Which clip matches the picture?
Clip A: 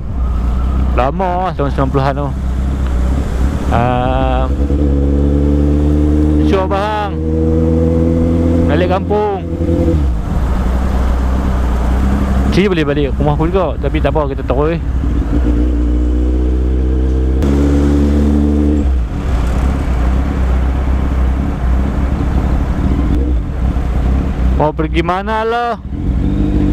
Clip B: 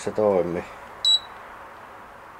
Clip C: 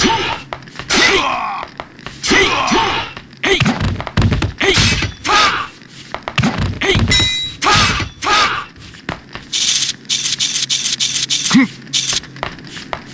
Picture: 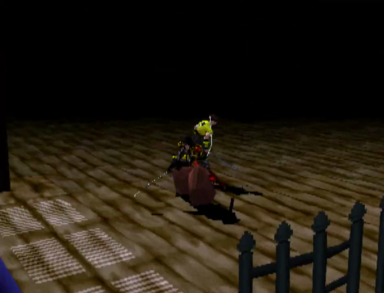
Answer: C